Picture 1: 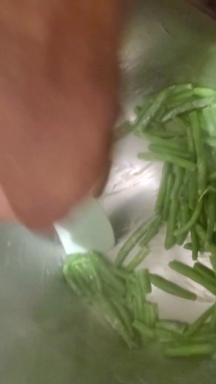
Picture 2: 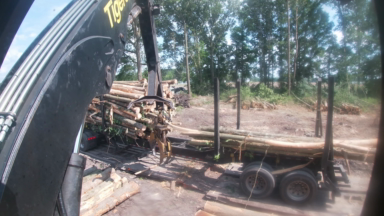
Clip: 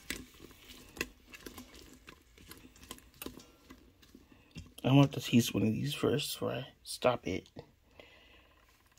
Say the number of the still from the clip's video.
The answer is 1